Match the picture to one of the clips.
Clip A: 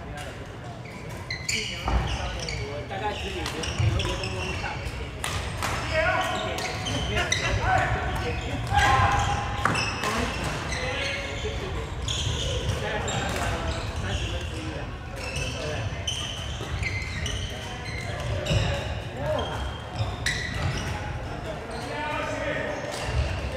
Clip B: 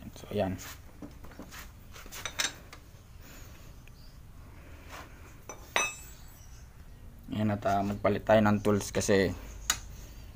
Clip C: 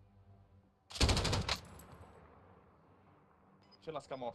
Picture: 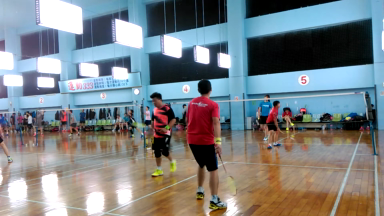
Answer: A